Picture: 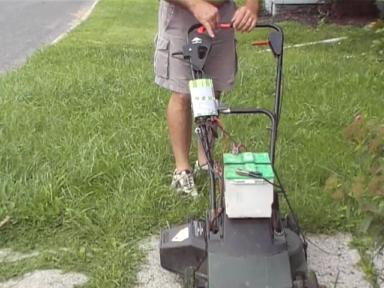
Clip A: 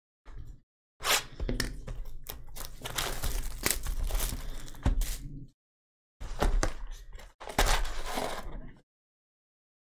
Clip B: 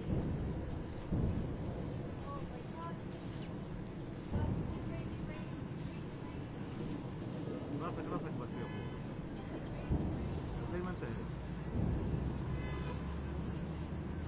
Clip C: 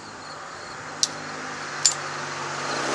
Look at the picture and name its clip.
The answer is C